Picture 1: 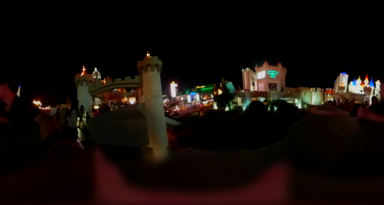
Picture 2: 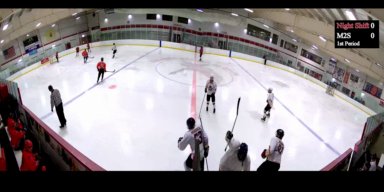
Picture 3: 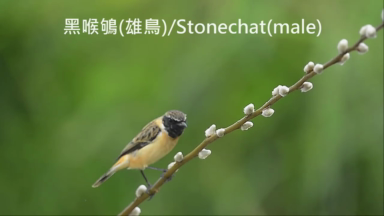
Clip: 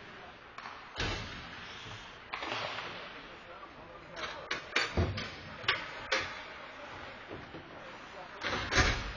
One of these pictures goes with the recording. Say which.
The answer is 2